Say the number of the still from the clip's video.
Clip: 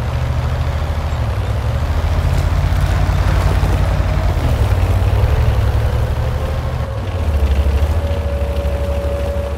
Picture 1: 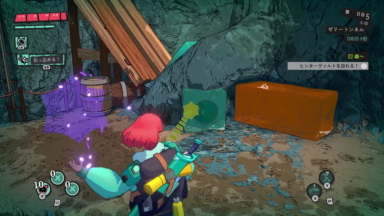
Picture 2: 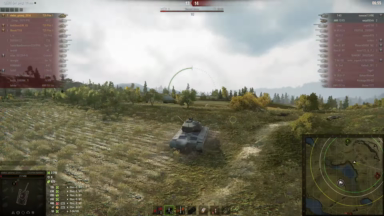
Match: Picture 2